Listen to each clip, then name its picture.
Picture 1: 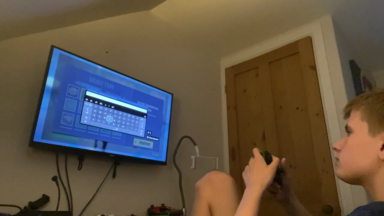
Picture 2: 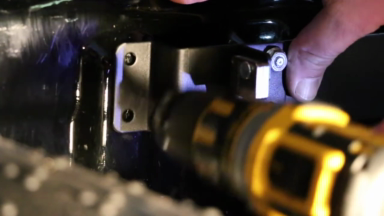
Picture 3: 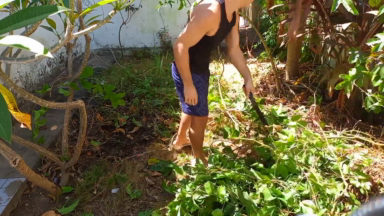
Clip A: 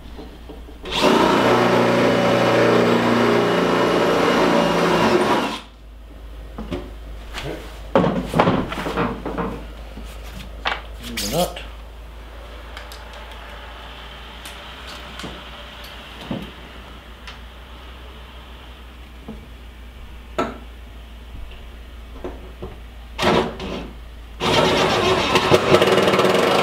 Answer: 2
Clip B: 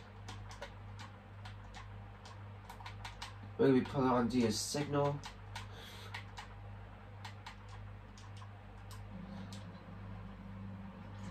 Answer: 1